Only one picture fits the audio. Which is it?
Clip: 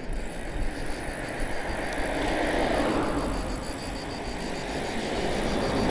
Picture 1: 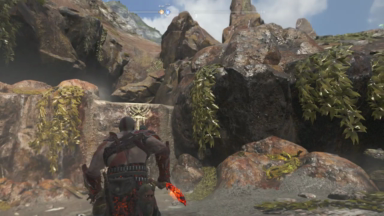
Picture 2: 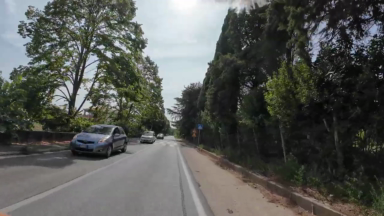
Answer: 2